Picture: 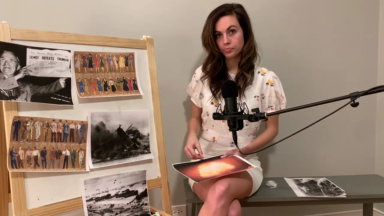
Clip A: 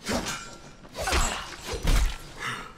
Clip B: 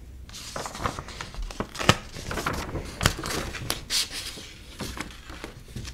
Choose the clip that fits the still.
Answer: B